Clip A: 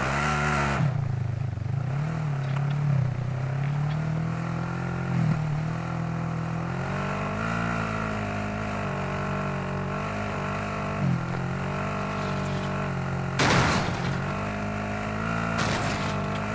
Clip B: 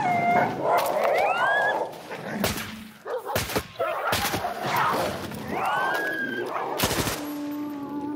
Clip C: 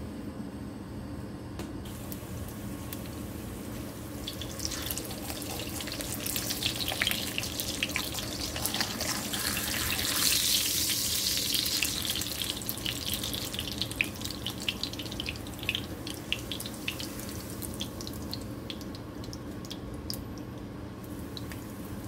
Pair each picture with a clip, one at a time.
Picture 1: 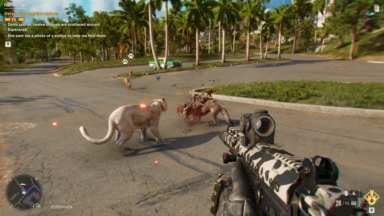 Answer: B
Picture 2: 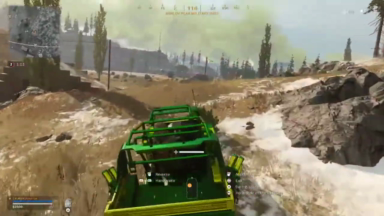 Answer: A